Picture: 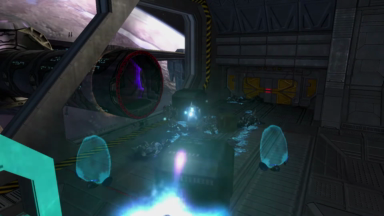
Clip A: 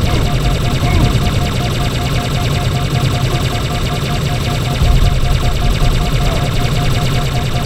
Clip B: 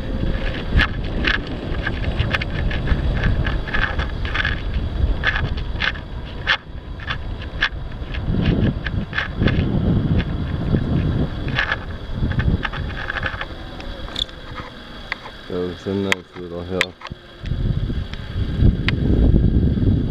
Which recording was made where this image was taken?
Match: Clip A